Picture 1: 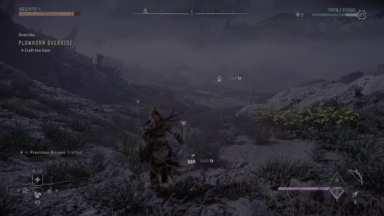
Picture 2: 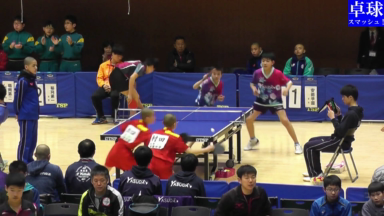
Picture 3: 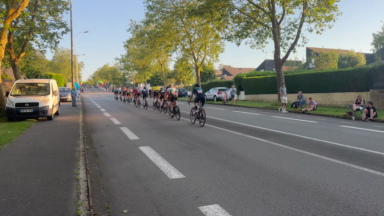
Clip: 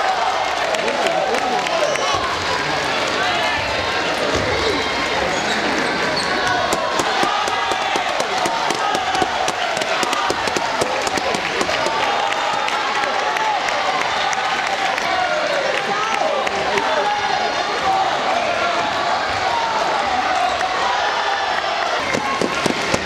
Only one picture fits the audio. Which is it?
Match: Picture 2